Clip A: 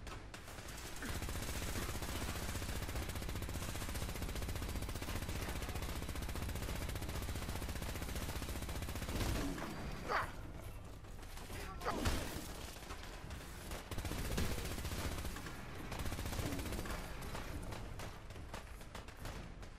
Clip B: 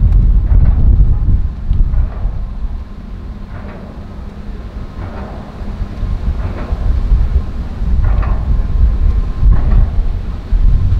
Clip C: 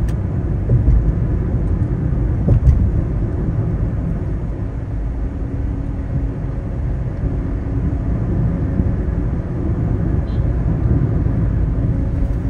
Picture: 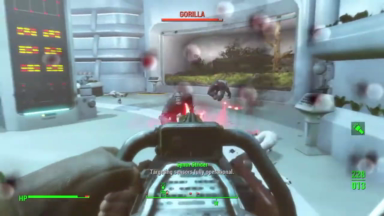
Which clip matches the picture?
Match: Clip A